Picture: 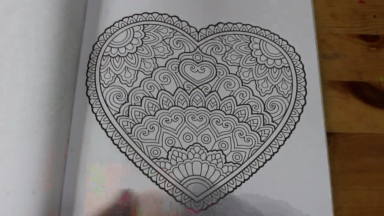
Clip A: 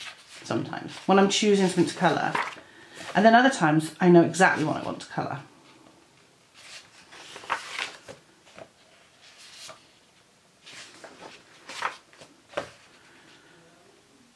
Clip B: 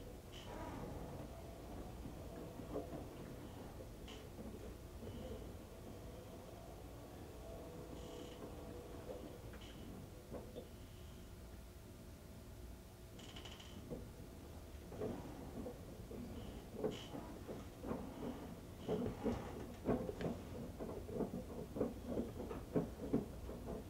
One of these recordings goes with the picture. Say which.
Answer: A